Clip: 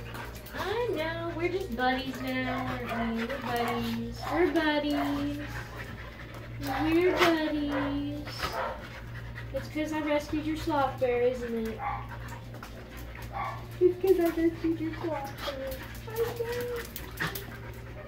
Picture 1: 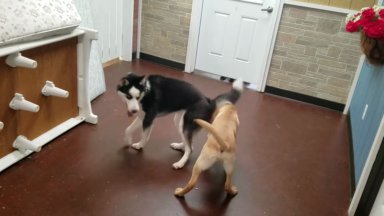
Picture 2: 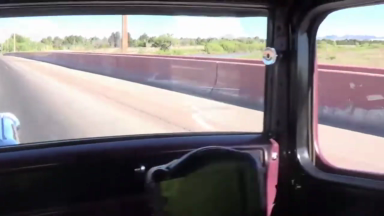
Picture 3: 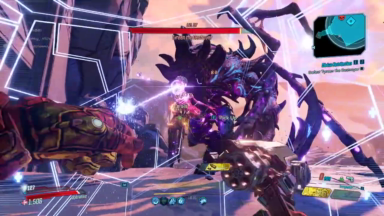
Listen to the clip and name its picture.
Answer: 1